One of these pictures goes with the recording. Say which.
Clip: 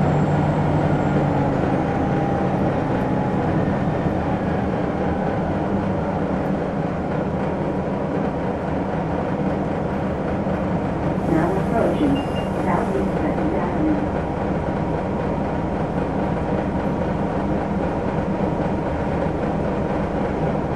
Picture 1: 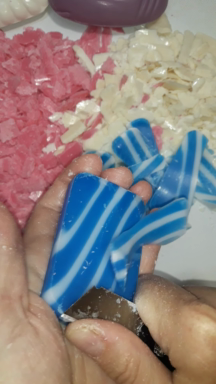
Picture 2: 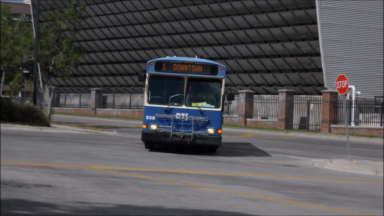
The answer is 2